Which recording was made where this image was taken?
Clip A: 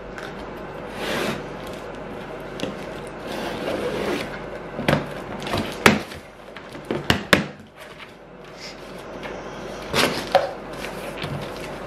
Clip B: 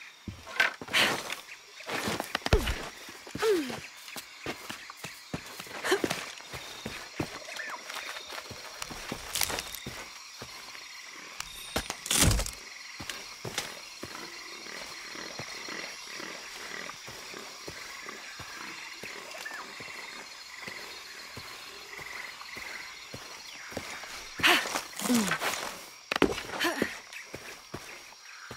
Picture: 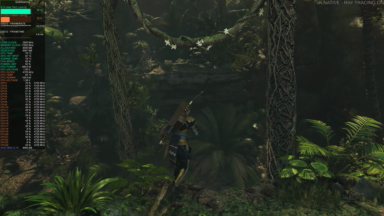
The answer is B